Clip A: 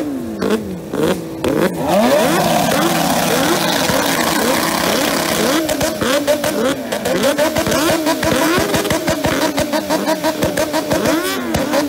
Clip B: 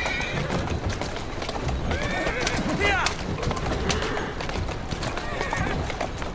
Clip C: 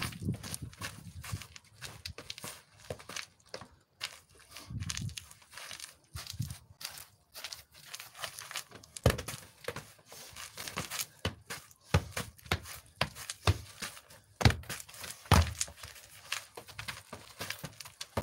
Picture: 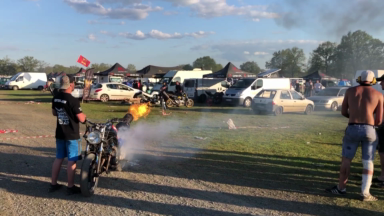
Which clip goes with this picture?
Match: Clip A